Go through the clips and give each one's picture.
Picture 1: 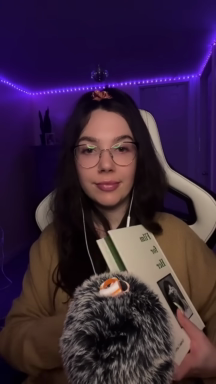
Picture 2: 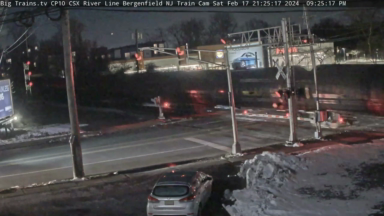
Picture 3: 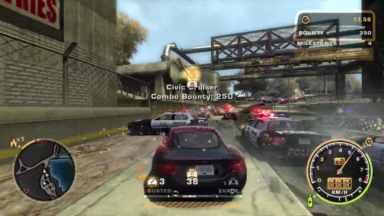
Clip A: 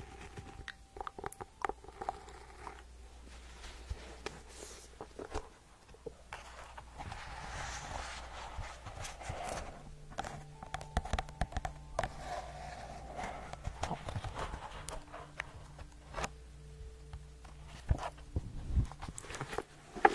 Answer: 1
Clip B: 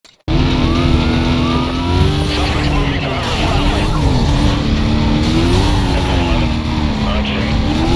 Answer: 3